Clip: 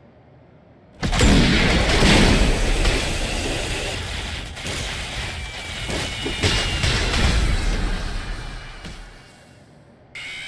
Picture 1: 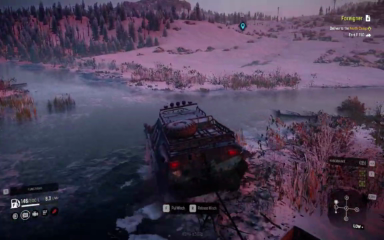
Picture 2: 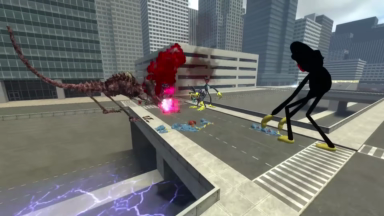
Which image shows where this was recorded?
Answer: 2